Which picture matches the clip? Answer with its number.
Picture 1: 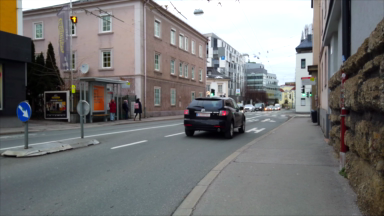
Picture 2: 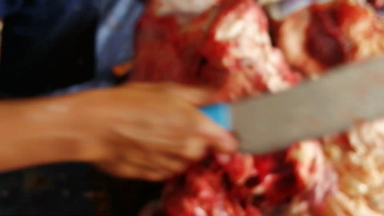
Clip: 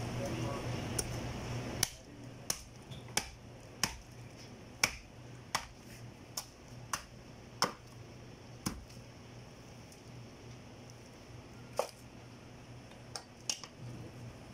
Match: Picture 2